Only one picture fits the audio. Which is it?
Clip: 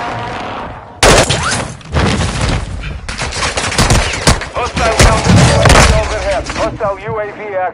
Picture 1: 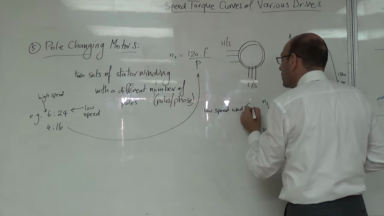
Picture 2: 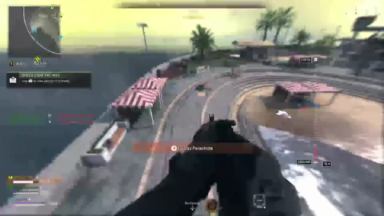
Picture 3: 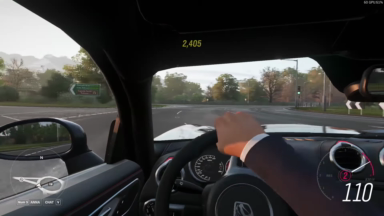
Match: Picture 2